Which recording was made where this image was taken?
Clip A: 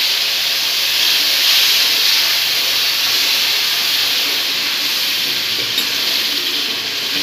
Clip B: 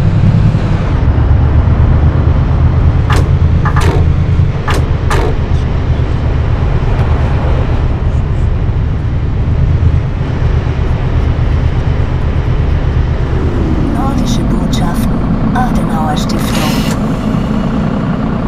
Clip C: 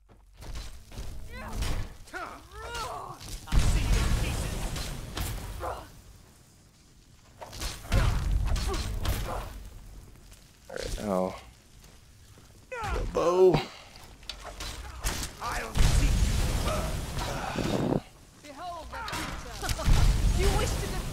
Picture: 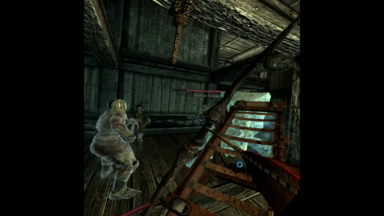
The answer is C